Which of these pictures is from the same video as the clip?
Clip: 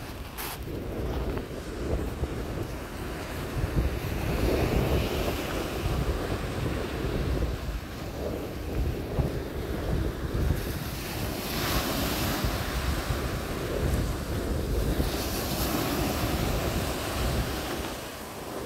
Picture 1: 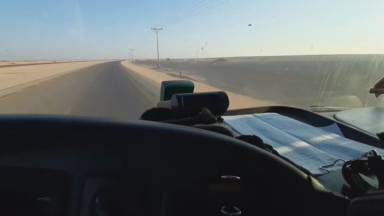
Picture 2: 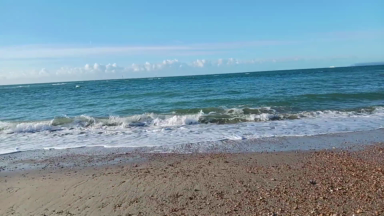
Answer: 2